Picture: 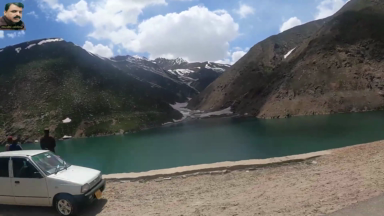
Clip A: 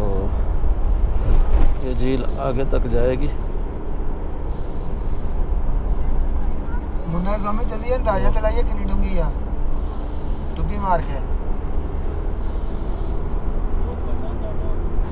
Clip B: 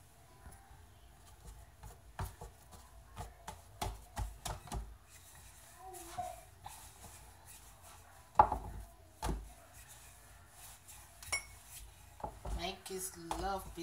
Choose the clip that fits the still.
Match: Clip A